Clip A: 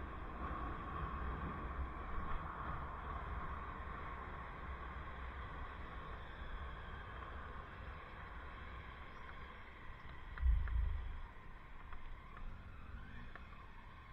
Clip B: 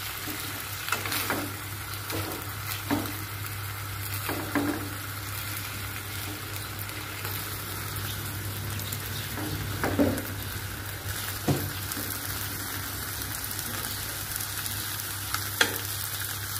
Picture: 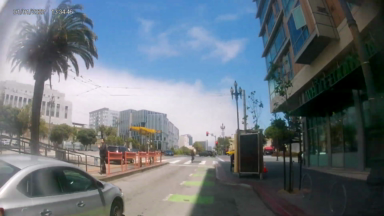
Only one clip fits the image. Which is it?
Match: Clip A